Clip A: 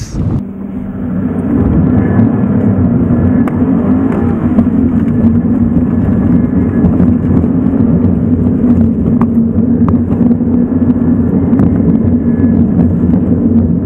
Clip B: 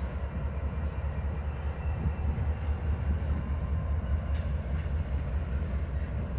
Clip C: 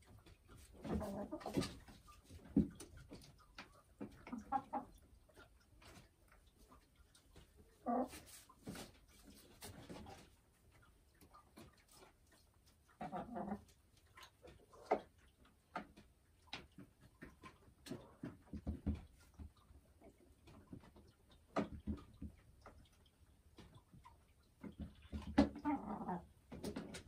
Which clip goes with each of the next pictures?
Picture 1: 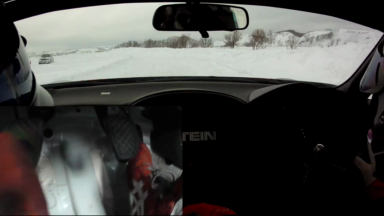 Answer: A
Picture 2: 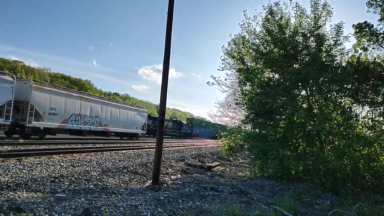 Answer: B